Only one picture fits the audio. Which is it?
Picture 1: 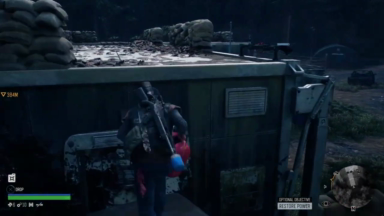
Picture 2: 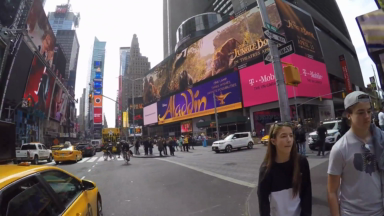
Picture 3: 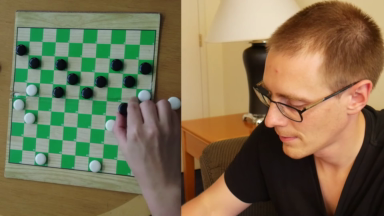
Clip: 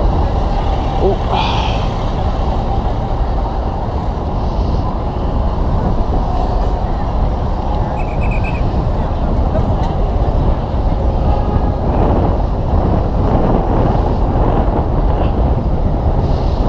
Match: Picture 2